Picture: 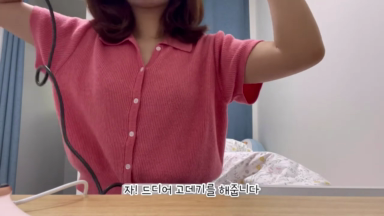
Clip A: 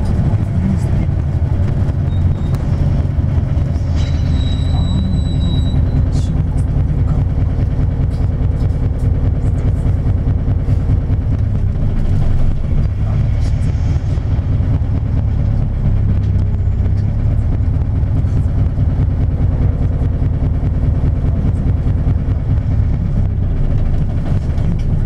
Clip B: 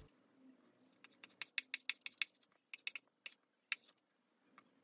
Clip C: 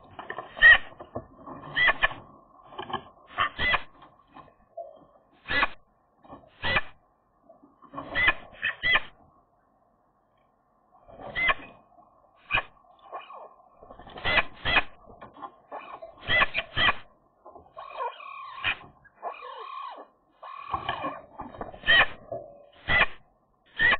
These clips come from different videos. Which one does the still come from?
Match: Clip B